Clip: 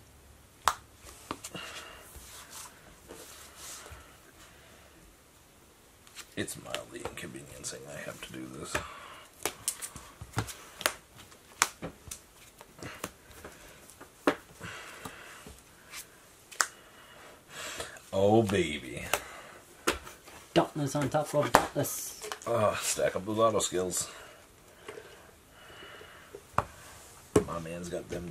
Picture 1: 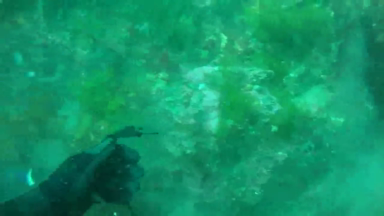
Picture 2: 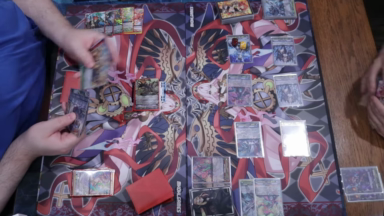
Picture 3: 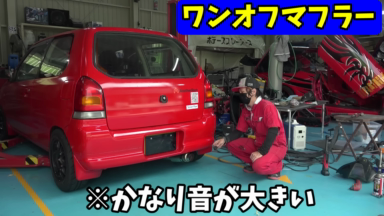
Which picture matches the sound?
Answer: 2